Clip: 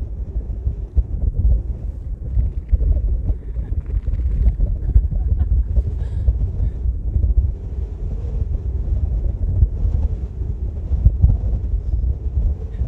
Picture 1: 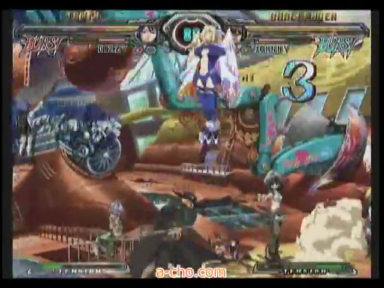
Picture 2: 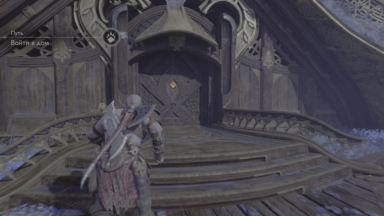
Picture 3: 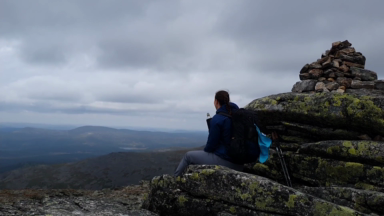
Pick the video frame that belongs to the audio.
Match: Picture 3